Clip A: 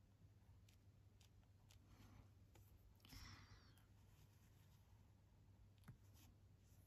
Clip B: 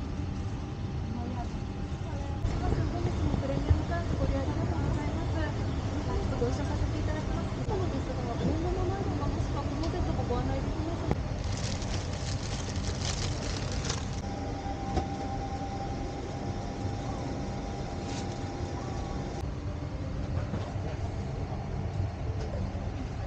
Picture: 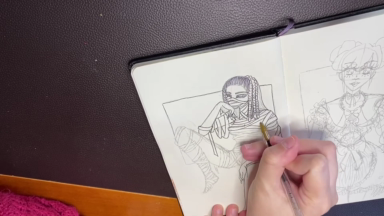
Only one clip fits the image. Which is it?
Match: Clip A